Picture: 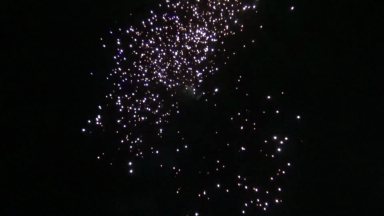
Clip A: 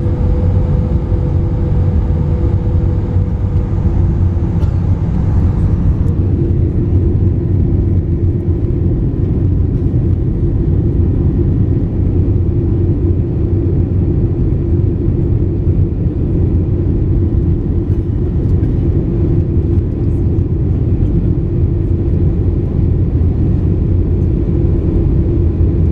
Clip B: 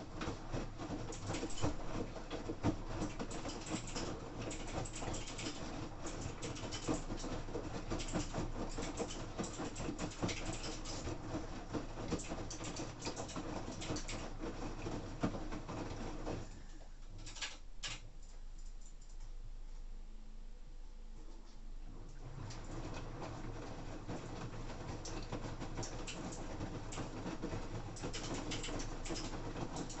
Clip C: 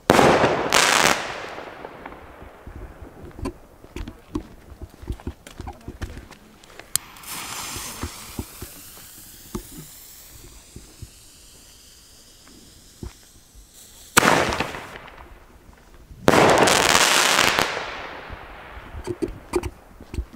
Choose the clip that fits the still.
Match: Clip C